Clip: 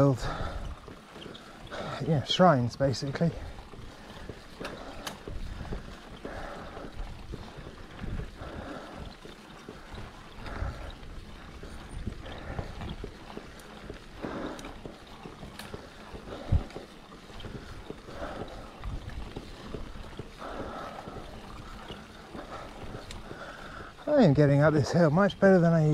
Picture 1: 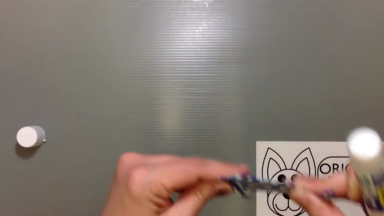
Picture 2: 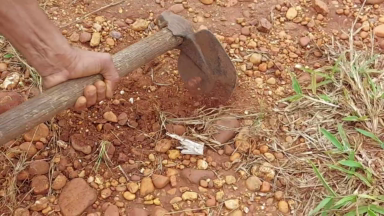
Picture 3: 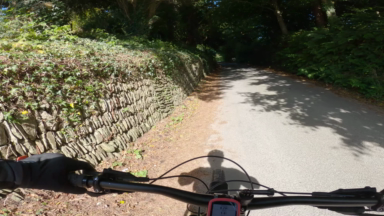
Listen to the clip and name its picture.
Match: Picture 3